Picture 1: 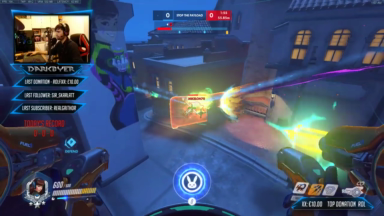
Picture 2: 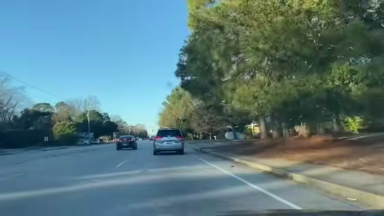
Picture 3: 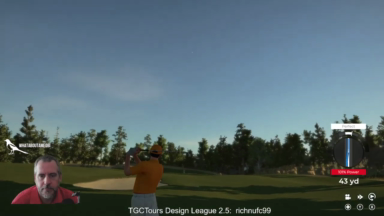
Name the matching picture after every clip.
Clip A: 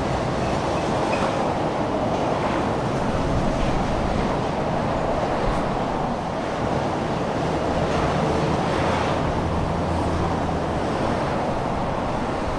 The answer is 2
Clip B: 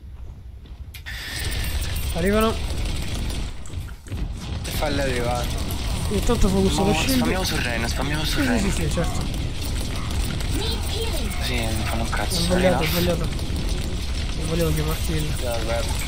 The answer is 1